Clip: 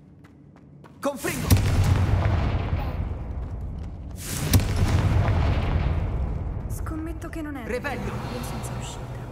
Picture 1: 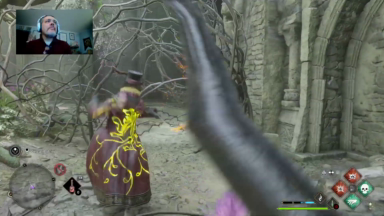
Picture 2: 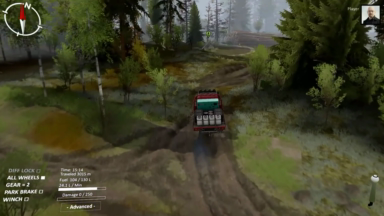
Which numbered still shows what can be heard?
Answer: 1